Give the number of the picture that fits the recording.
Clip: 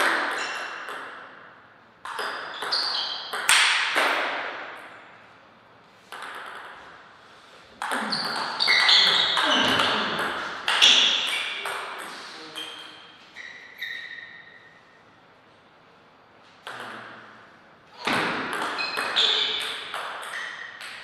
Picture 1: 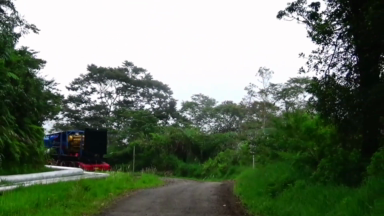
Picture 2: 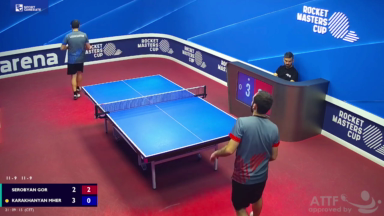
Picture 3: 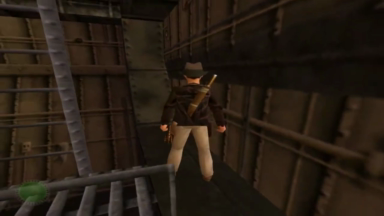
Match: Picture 2